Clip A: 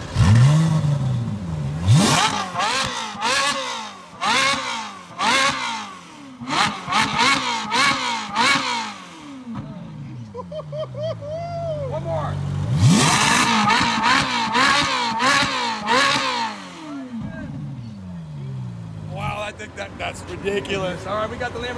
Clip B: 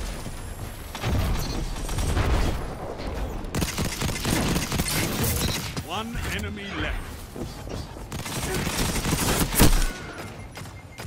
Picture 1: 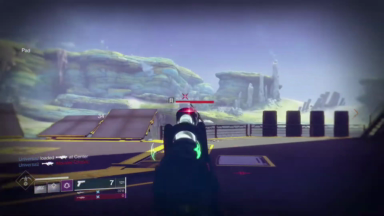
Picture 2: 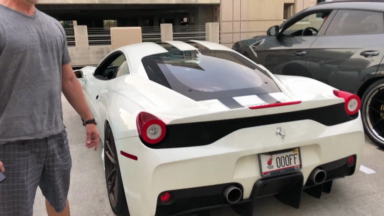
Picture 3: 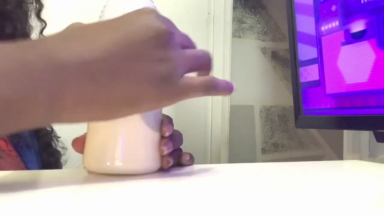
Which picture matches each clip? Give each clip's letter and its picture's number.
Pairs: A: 2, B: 1